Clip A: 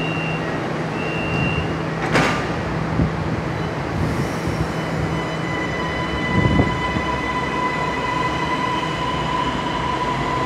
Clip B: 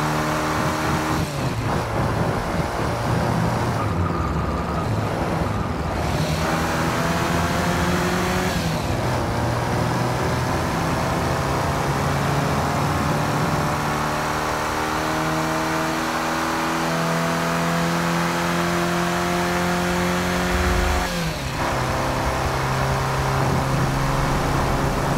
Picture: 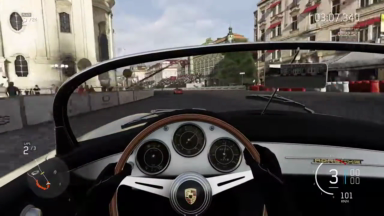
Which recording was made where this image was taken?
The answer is B